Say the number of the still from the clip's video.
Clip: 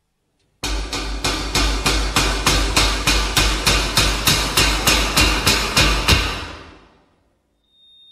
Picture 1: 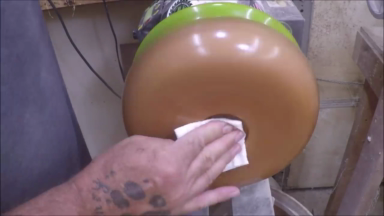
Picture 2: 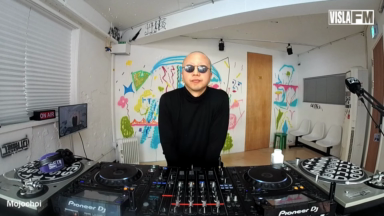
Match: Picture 2